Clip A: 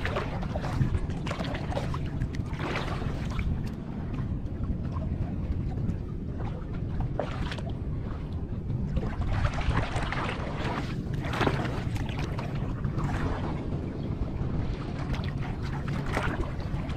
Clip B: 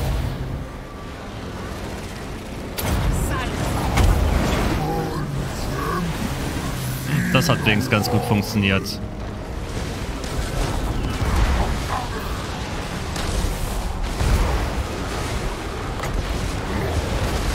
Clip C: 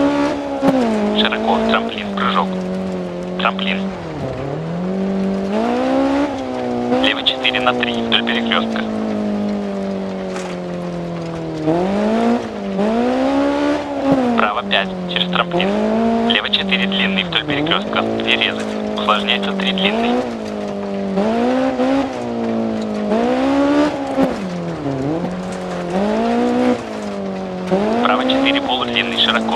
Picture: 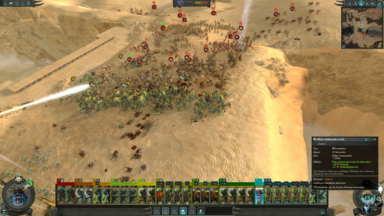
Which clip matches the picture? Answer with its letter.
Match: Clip B